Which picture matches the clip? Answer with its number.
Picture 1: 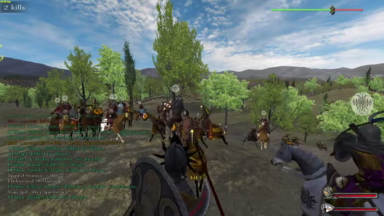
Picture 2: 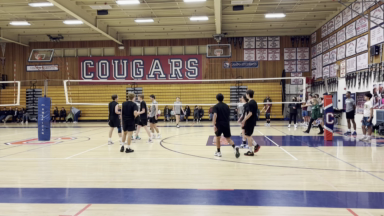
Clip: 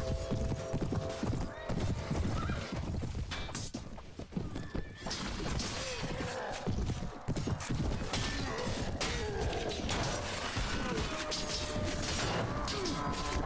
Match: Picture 1